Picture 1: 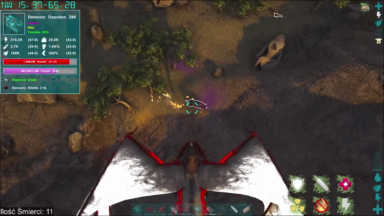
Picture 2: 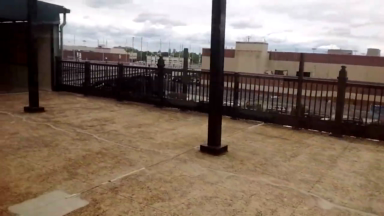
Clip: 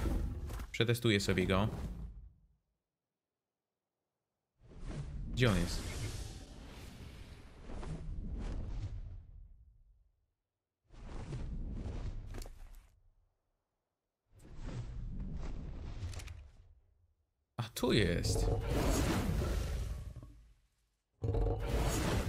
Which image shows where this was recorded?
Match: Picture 1